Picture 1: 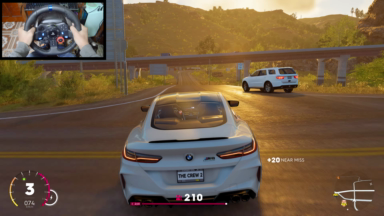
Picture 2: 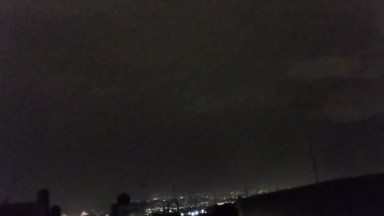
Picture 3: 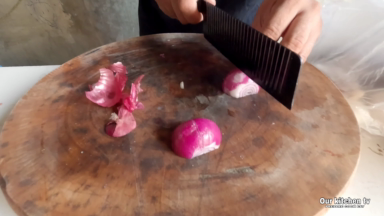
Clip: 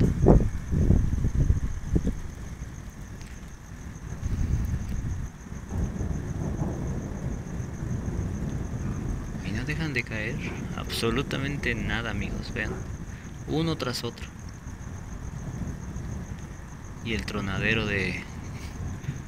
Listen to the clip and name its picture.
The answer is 2